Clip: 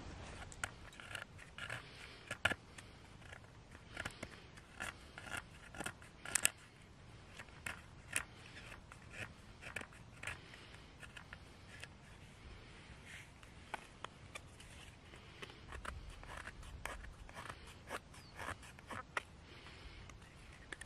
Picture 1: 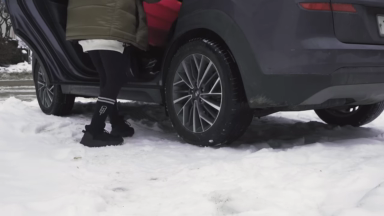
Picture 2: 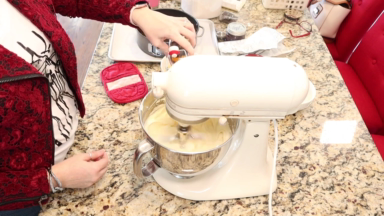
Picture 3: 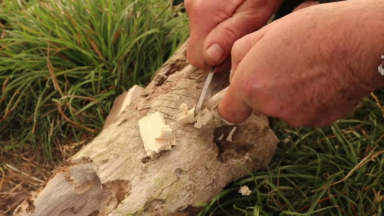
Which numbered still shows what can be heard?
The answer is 3